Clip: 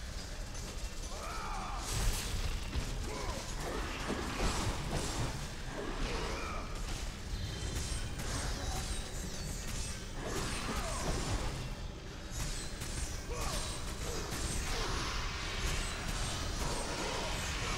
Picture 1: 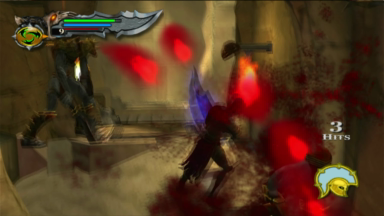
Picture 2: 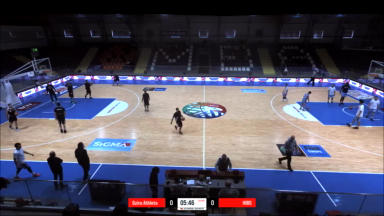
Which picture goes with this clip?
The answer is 1